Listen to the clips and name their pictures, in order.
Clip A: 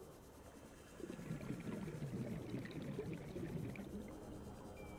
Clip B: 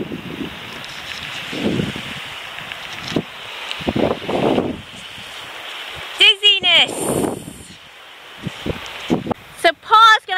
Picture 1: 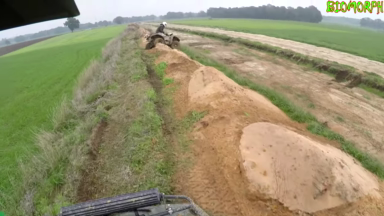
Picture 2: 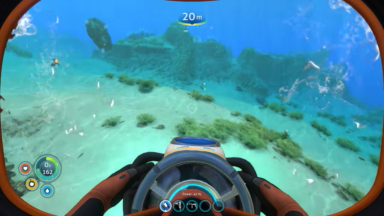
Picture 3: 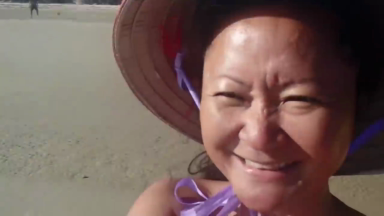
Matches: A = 2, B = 3